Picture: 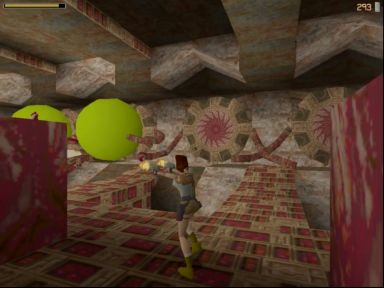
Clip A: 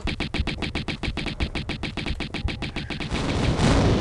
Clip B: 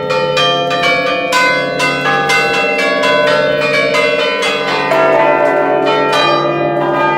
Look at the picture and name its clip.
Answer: A